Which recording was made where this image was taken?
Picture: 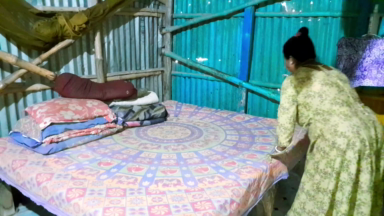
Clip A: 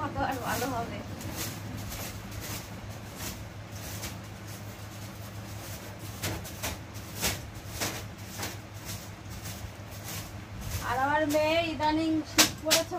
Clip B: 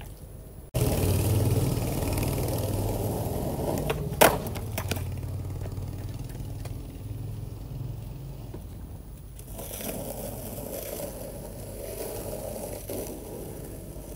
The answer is A